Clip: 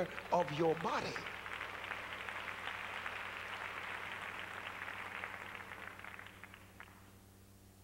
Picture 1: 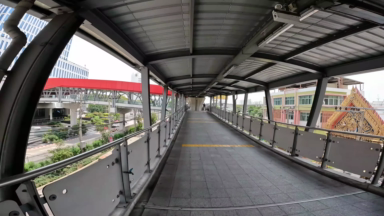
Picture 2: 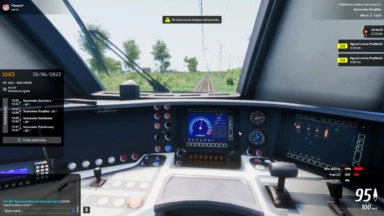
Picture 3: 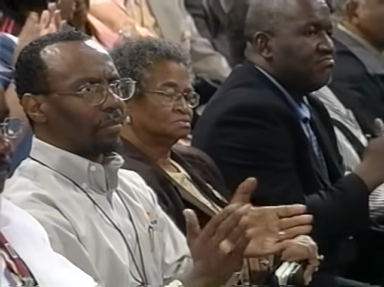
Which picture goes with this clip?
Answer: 3